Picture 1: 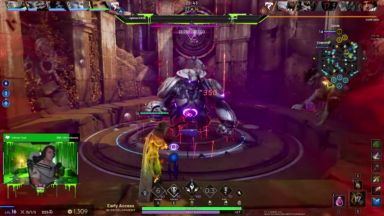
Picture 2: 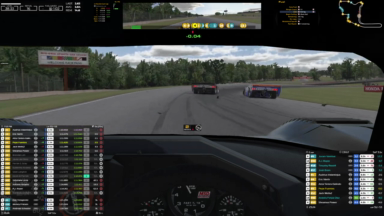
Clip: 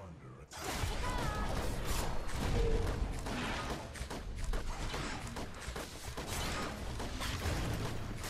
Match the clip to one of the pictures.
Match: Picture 1